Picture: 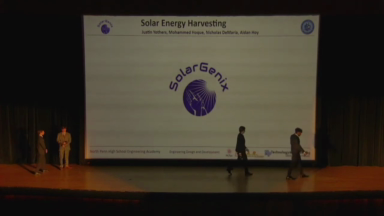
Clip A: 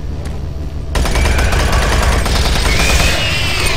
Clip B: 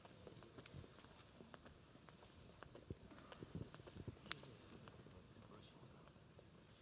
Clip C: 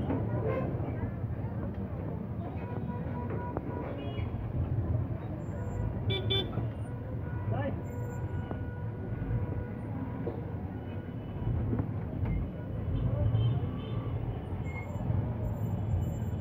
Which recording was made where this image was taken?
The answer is B